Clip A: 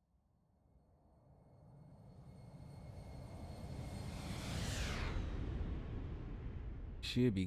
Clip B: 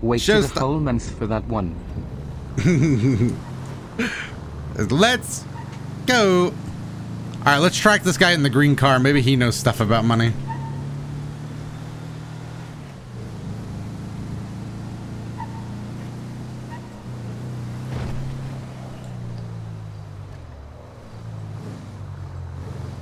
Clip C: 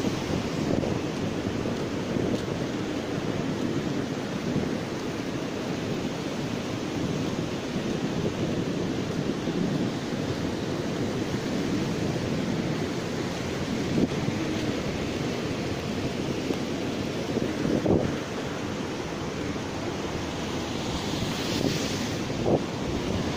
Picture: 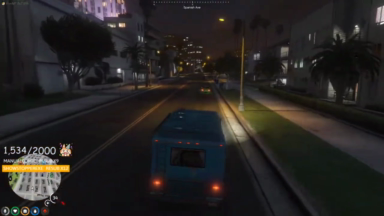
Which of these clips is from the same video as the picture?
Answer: B